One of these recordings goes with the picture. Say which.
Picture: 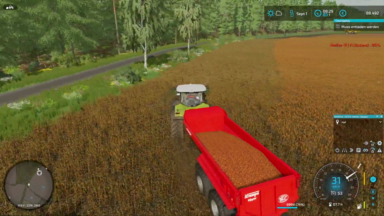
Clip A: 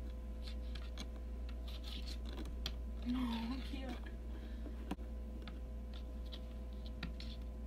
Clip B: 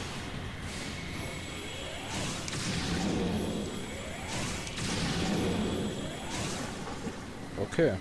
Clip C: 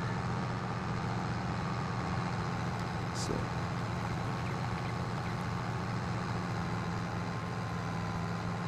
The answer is C